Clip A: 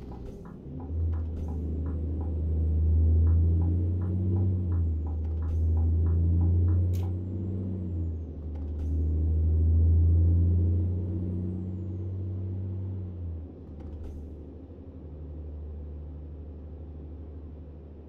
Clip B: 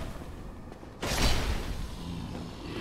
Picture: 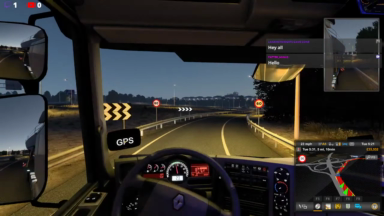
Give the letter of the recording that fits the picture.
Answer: A